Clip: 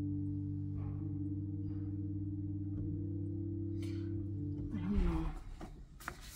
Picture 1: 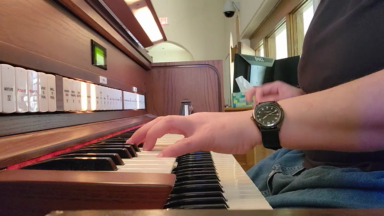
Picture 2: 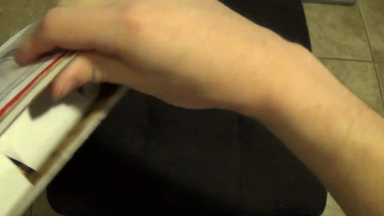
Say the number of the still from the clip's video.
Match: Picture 1